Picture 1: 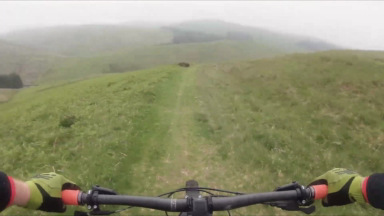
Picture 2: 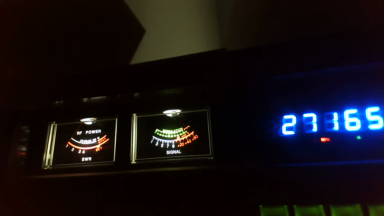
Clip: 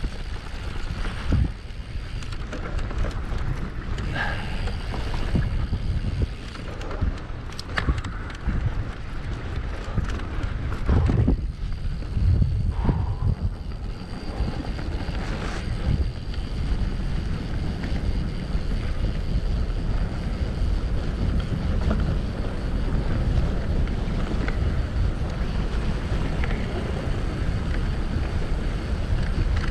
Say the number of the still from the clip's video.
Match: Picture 1